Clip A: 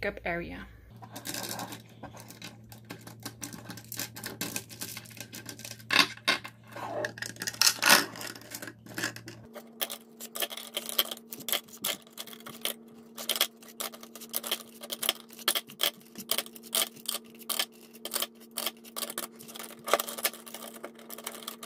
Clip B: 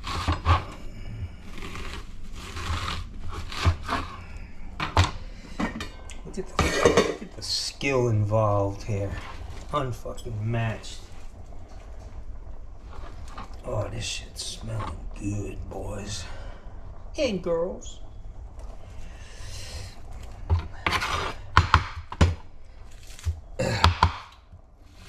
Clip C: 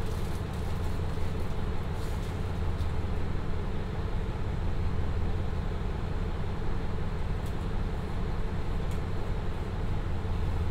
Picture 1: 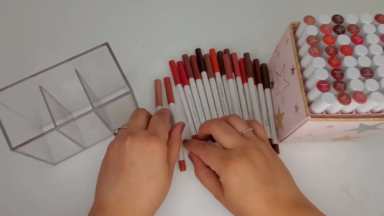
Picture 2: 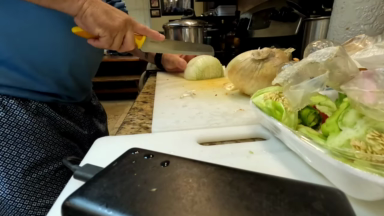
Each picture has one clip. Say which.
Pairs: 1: A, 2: B